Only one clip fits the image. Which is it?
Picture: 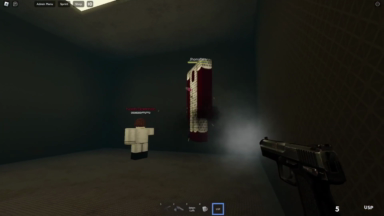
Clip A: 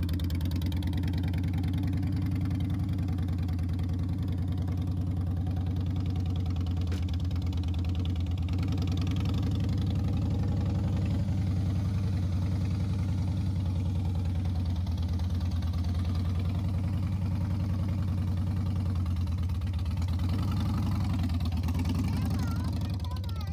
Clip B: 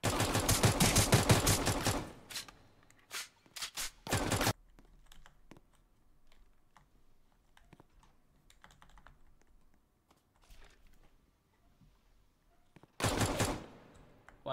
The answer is B